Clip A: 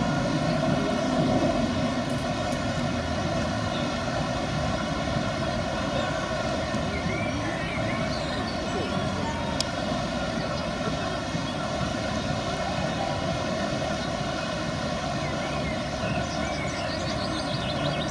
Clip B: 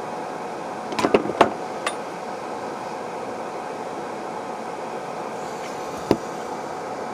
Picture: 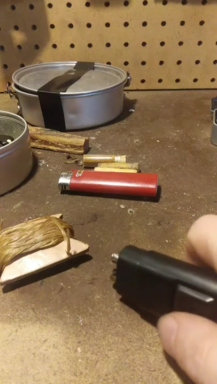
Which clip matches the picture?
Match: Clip B